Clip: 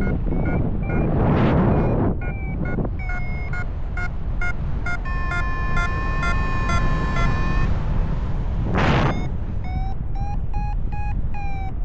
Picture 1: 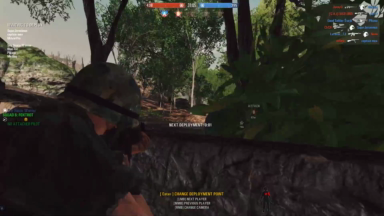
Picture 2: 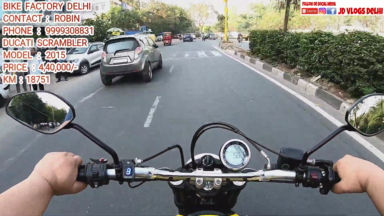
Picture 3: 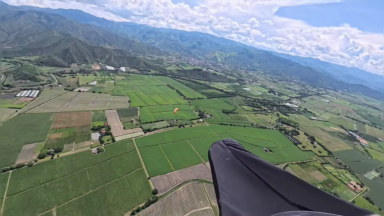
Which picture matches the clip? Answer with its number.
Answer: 3